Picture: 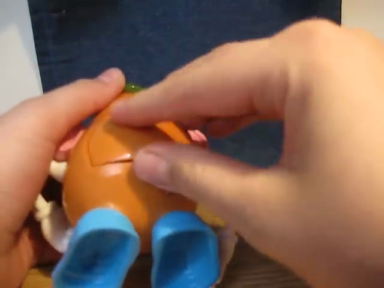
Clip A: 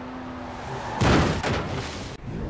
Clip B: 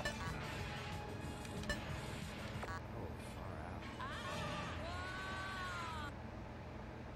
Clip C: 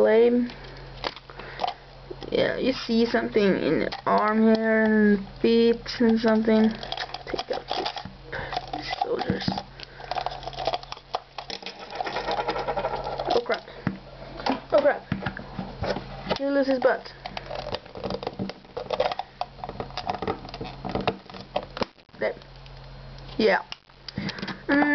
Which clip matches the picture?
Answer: C